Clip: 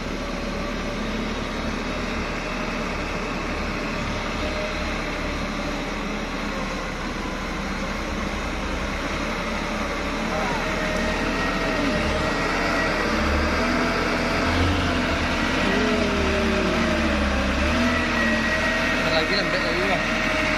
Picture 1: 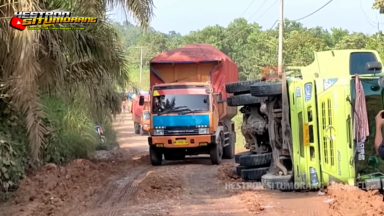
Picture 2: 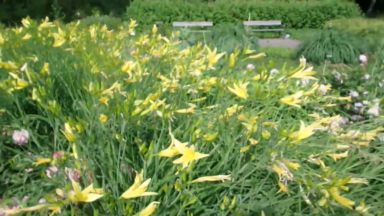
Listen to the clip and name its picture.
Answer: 1